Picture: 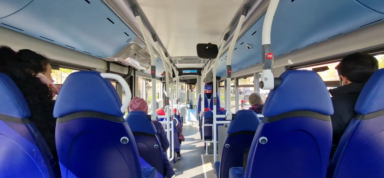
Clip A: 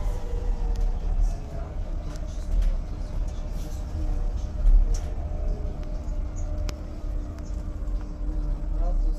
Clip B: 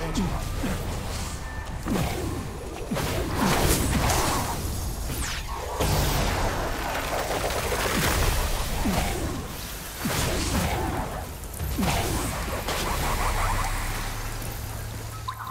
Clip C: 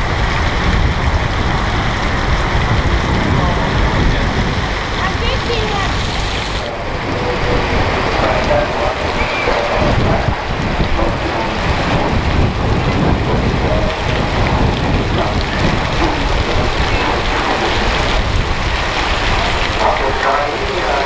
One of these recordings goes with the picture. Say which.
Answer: A